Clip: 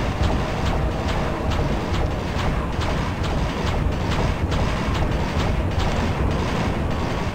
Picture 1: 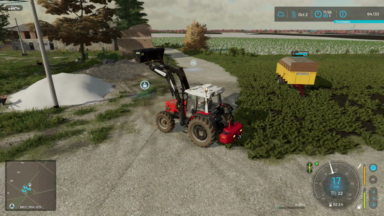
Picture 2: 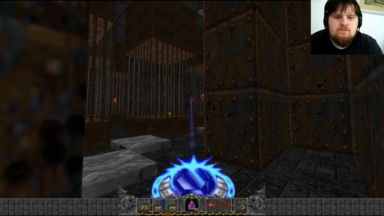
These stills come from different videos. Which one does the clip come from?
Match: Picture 2